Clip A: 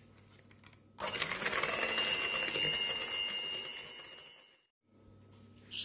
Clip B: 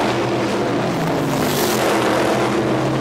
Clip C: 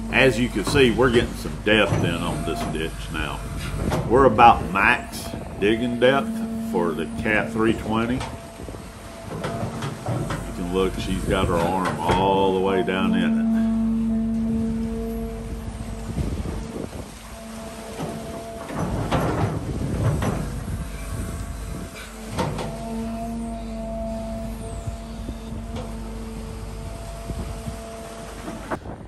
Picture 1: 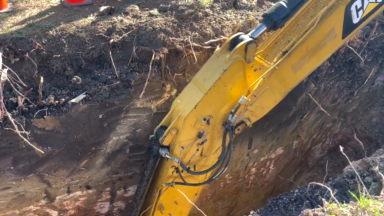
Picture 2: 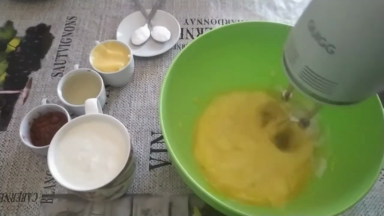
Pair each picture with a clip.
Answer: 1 C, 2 A